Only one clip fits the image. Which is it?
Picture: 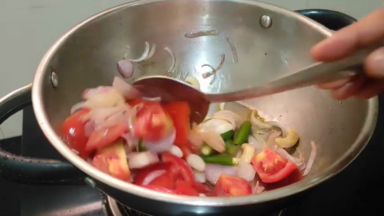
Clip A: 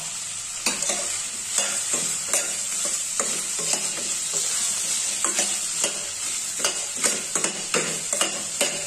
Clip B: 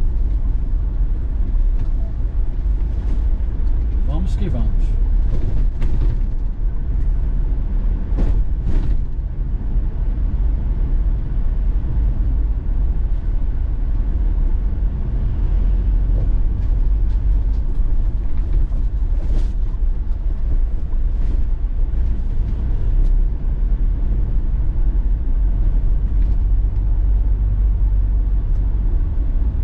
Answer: A